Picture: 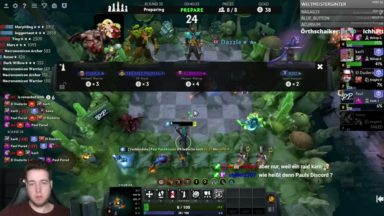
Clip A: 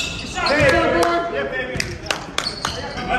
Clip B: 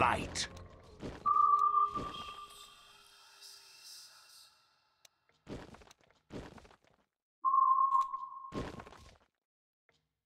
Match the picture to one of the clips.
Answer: B